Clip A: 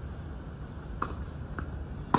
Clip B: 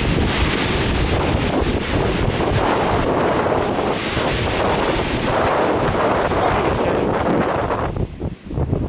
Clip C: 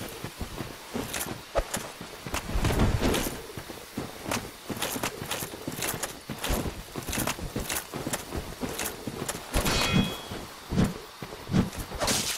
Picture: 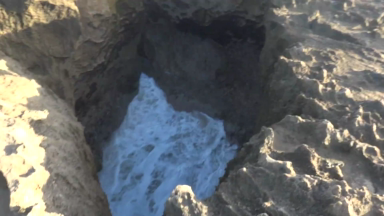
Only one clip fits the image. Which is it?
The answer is B